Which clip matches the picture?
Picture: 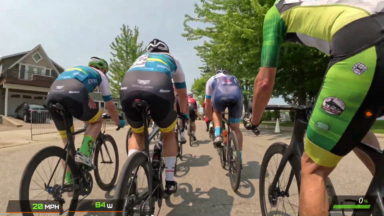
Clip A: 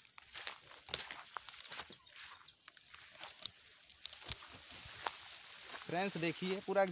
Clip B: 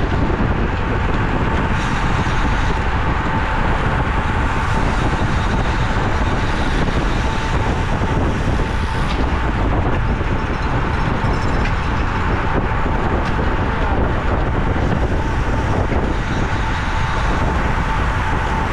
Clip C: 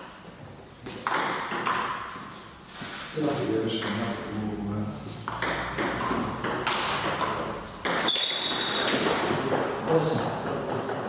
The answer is B